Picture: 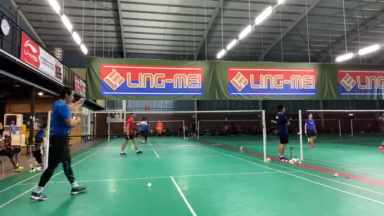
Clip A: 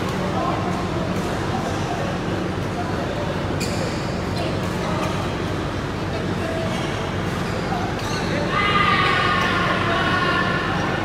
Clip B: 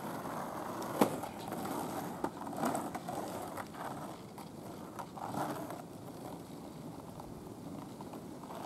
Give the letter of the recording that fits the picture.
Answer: A